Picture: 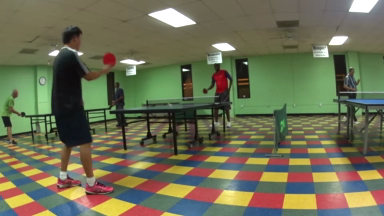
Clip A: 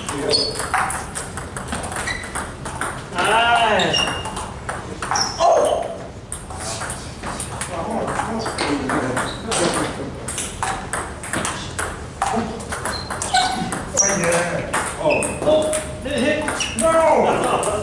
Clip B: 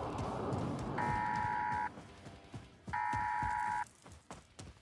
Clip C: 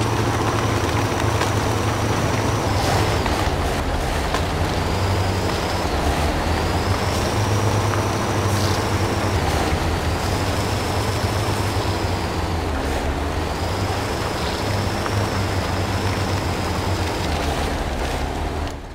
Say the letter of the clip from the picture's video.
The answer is A